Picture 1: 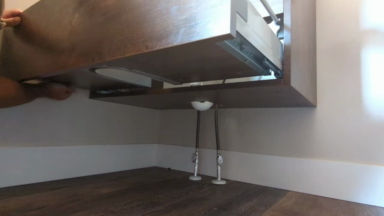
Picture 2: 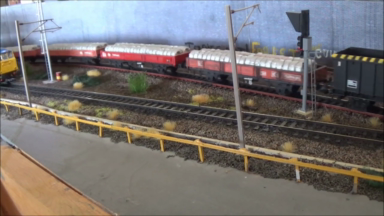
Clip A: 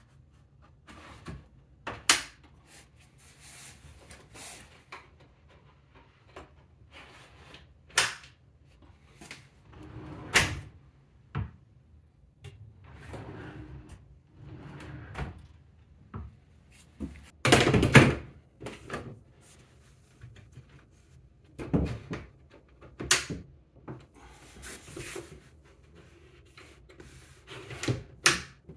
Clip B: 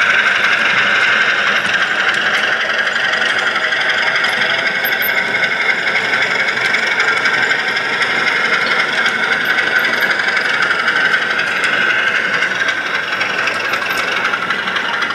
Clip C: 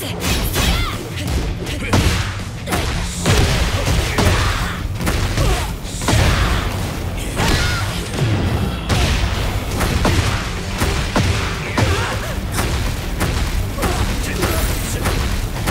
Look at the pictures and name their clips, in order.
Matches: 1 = A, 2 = B